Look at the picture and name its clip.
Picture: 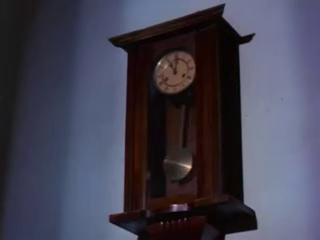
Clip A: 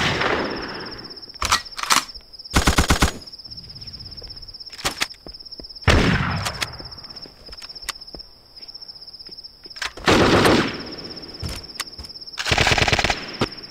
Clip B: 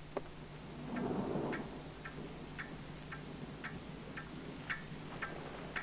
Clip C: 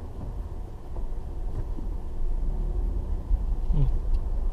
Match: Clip B